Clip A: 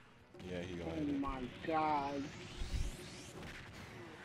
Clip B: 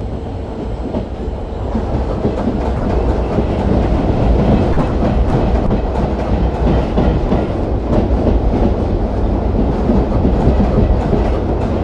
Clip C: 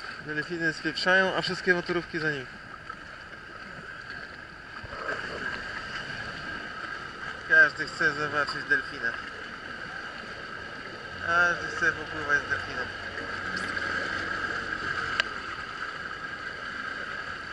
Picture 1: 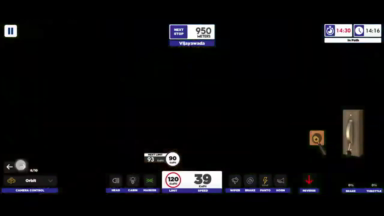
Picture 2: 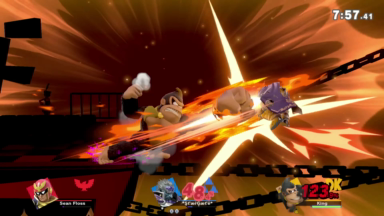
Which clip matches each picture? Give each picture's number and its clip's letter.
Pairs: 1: B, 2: A